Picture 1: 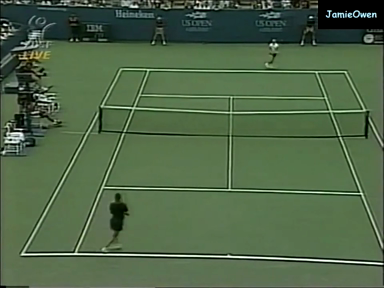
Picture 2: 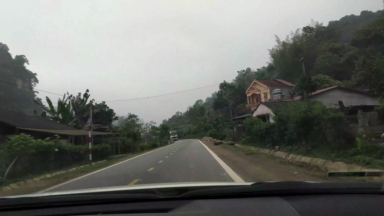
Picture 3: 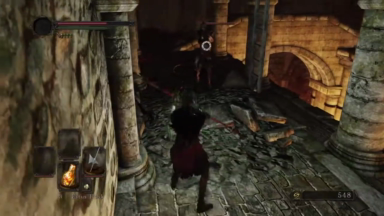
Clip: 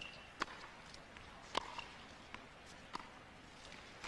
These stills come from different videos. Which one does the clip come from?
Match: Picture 1